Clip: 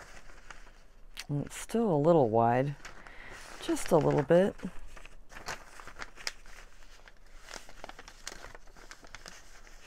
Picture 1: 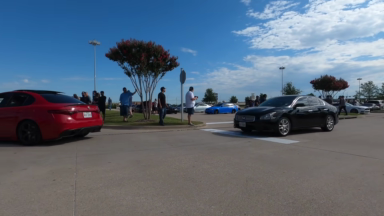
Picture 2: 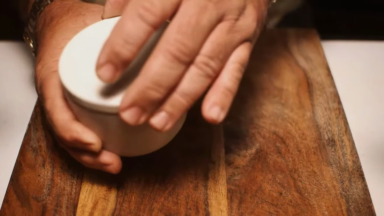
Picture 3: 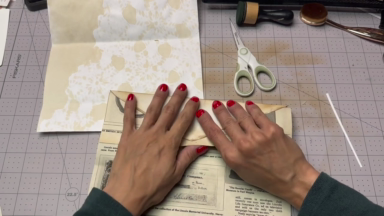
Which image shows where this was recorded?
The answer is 3